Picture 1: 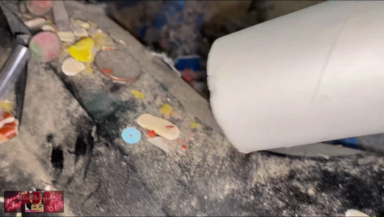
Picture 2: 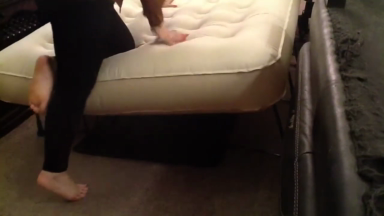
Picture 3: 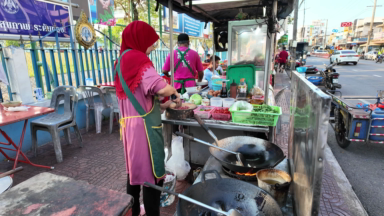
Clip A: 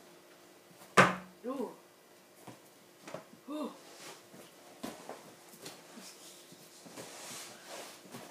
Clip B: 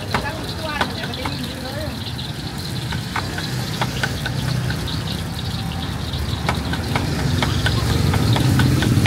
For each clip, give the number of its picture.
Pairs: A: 2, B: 3